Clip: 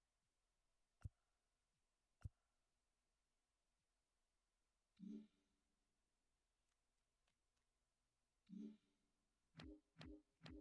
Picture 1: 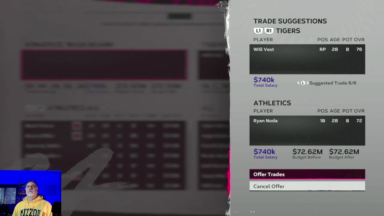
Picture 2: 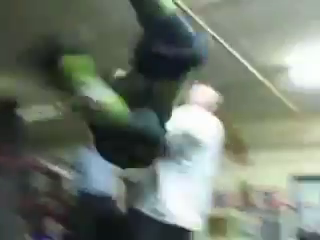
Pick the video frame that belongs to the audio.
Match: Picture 1